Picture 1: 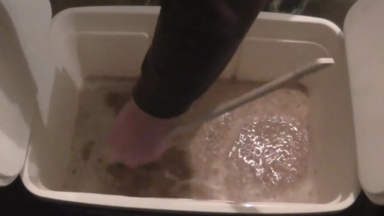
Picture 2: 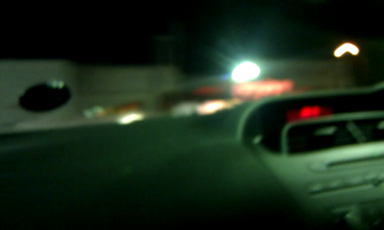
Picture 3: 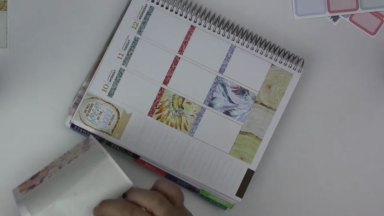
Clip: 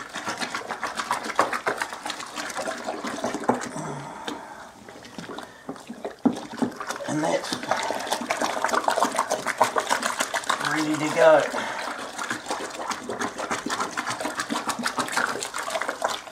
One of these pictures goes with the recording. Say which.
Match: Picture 1